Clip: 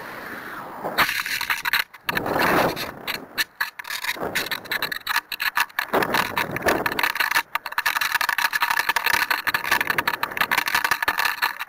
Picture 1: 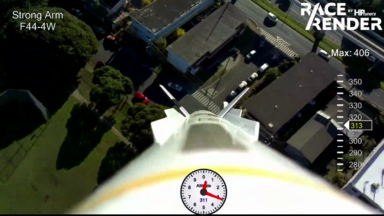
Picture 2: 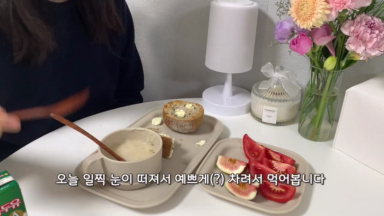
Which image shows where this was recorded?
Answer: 1